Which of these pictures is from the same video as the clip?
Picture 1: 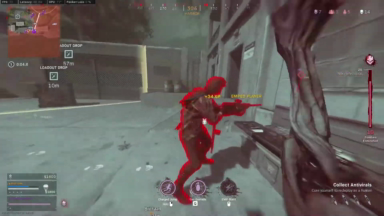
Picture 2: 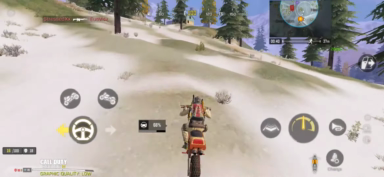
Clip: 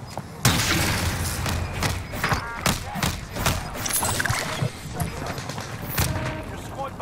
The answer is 1